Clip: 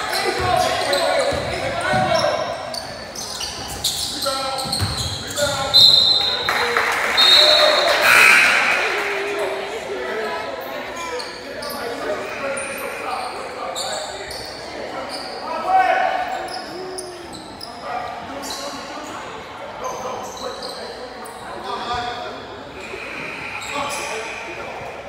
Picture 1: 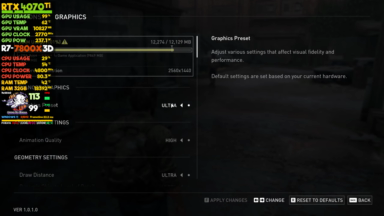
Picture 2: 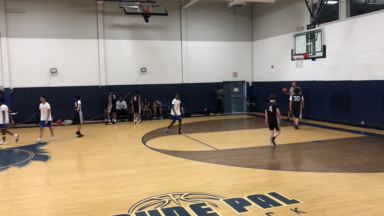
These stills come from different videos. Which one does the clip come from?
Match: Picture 2